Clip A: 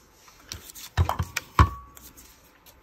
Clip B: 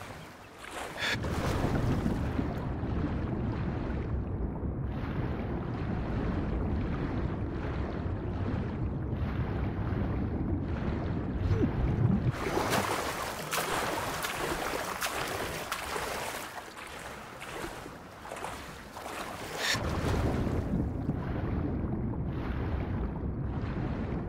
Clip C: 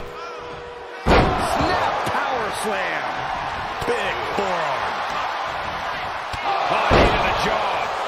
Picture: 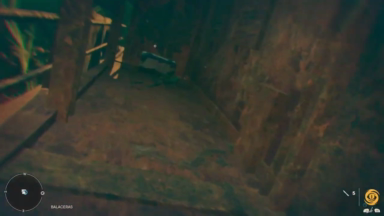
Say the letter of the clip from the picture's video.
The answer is B